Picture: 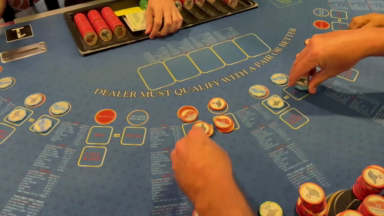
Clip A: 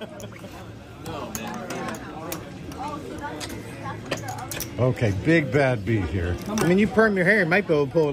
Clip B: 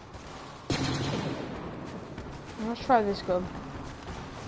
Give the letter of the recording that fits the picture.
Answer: A